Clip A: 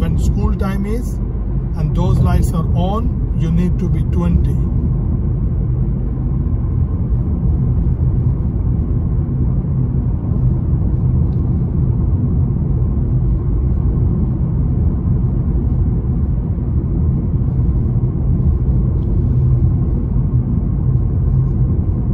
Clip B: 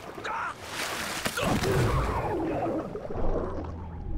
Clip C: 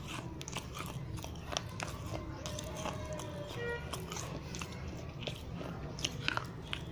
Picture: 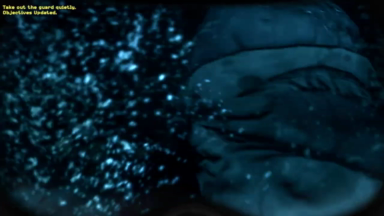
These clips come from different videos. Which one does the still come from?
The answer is B